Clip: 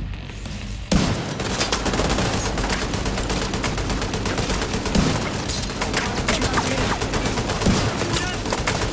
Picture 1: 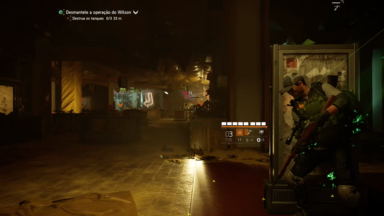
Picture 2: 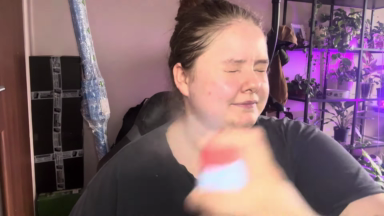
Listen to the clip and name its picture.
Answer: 1